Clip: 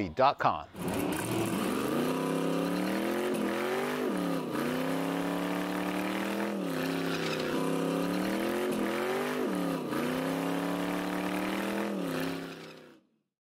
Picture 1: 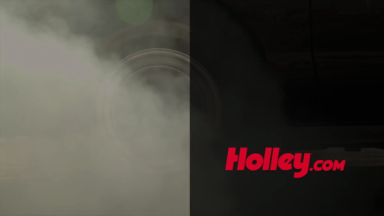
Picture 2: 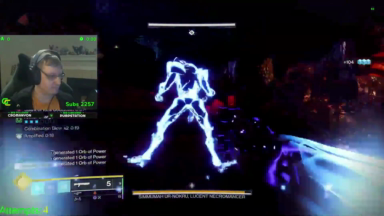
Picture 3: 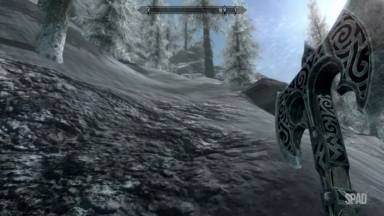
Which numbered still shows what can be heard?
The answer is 1